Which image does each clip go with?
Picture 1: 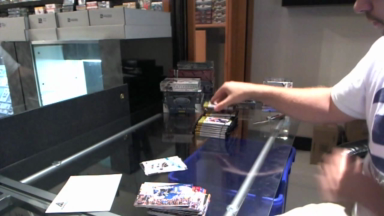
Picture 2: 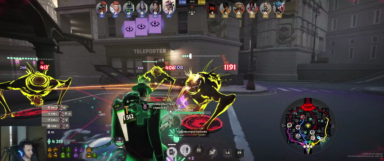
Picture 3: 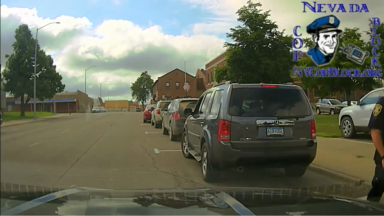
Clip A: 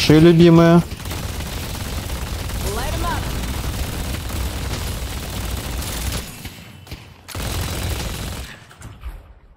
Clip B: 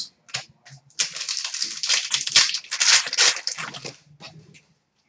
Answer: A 2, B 1